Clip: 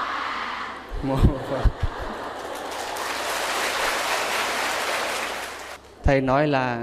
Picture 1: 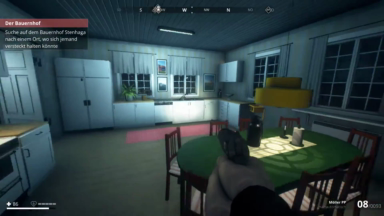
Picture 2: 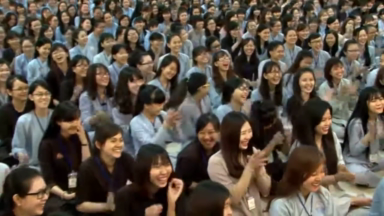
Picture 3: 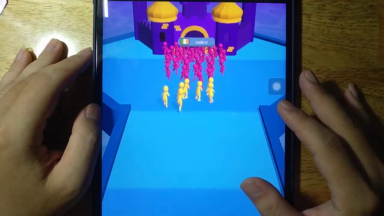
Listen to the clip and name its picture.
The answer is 2